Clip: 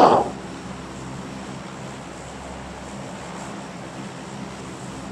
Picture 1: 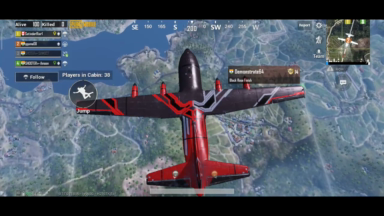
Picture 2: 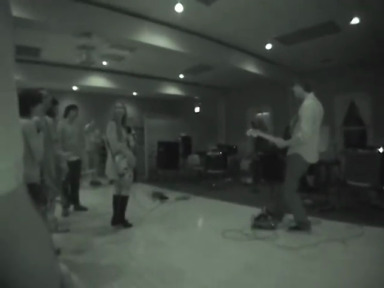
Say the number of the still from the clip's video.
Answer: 1